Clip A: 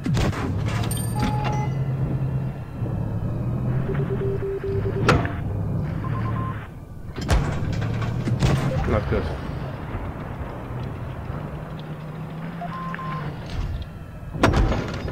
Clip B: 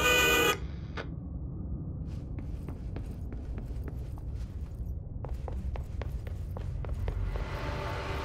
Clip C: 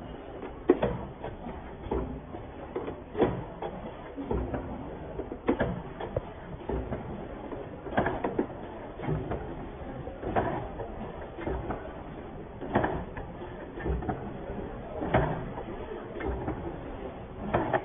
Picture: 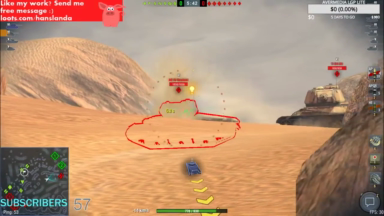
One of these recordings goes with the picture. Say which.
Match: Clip A